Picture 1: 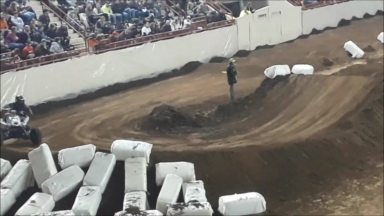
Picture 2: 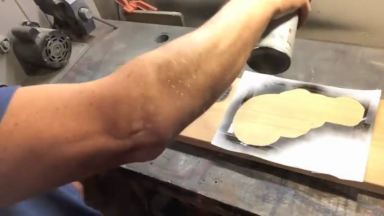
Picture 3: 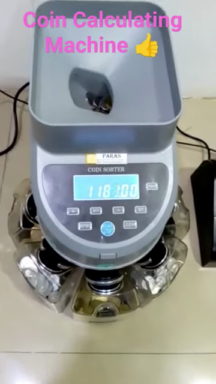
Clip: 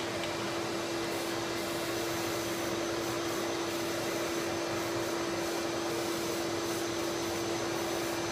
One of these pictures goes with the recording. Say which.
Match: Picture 2